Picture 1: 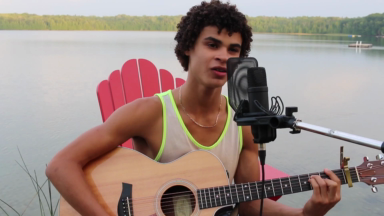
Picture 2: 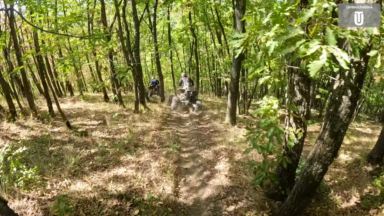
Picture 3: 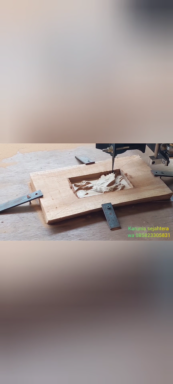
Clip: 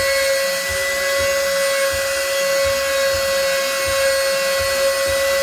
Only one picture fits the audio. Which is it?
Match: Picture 3